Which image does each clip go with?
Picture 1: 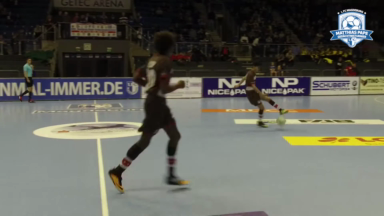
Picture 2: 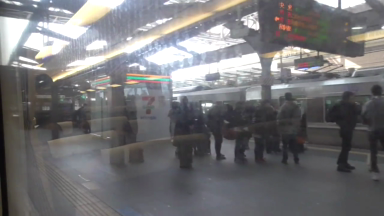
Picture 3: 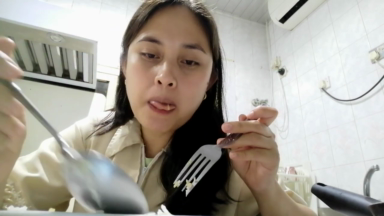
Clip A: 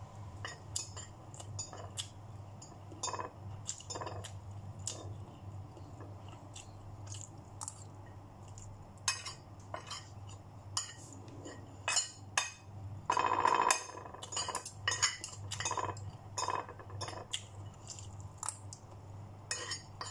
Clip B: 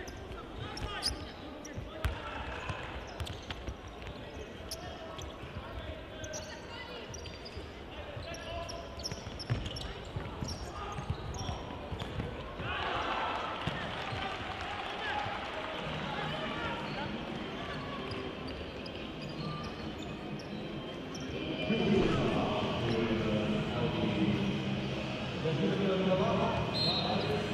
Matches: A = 3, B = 1